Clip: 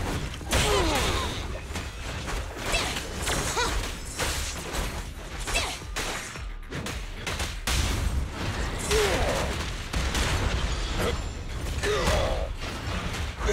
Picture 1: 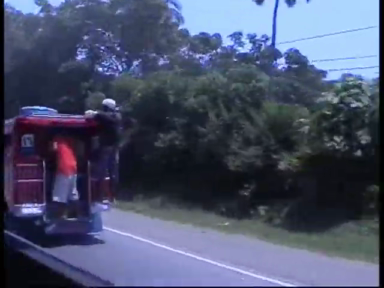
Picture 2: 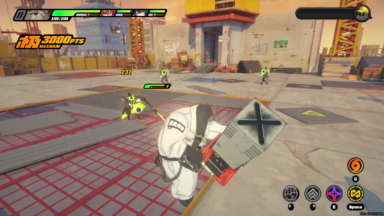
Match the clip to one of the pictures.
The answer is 2